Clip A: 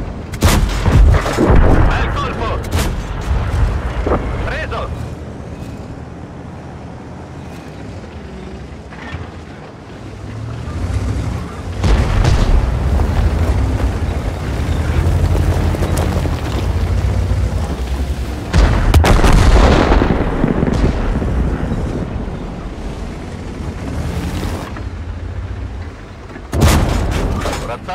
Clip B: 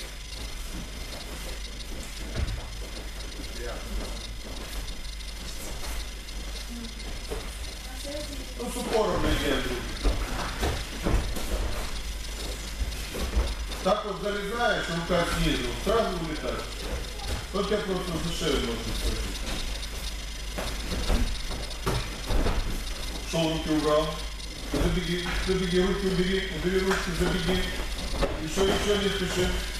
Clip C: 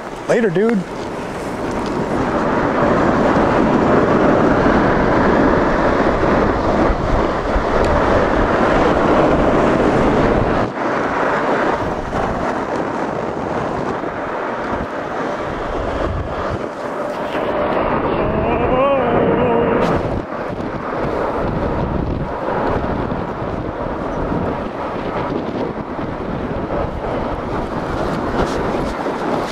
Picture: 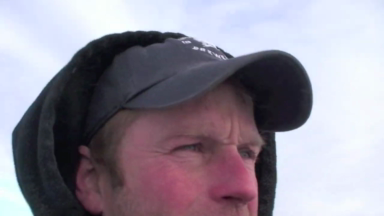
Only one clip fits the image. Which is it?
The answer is C